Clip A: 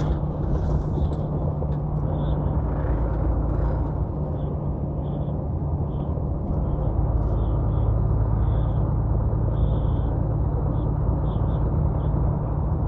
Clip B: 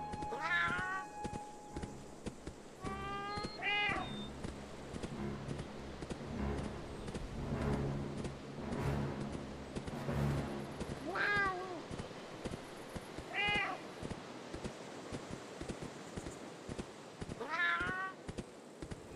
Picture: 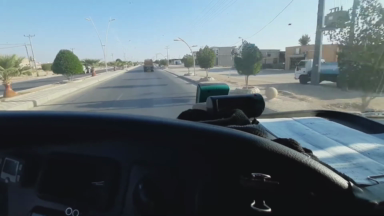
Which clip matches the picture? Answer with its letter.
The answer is A